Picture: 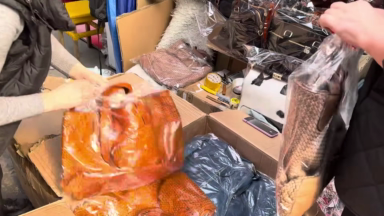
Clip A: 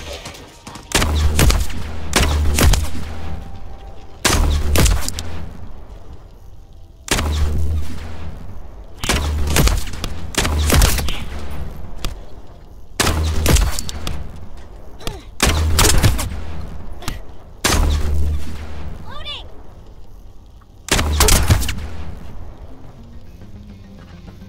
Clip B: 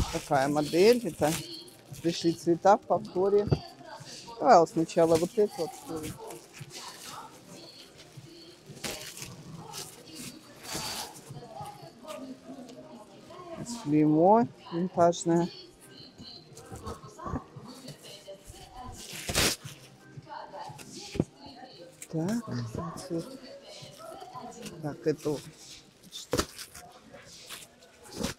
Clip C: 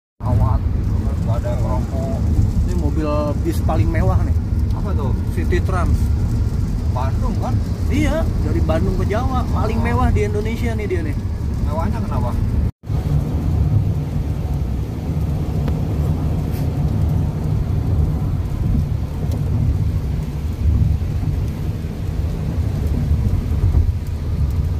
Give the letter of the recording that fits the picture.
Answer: B